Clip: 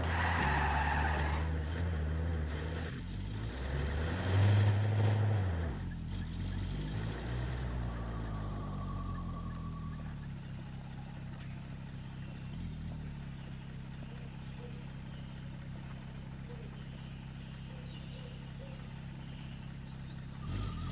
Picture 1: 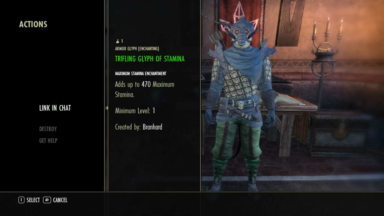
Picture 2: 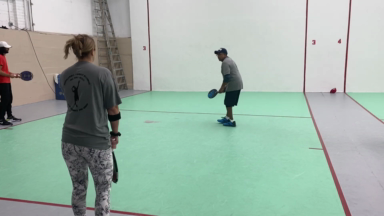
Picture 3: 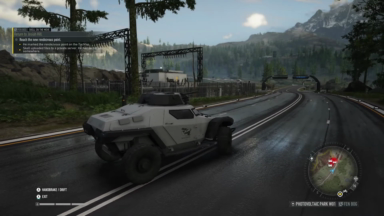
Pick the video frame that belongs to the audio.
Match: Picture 3